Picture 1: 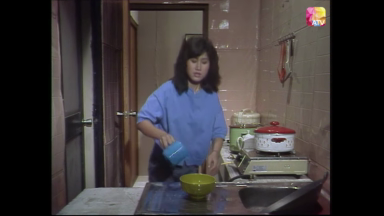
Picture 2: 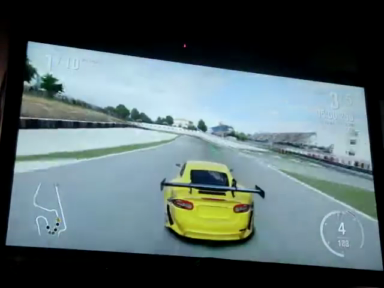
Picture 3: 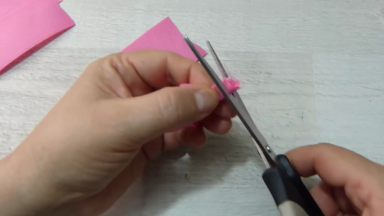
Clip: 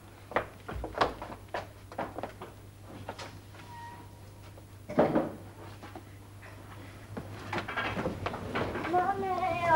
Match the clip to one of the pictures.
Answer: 1